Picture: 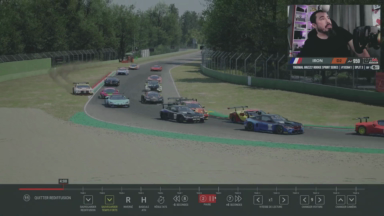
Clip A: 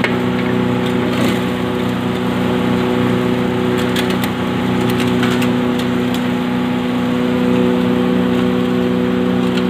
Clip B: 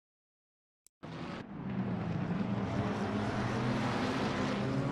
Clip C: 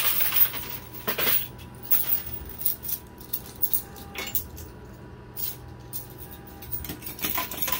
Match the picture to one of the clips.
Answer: B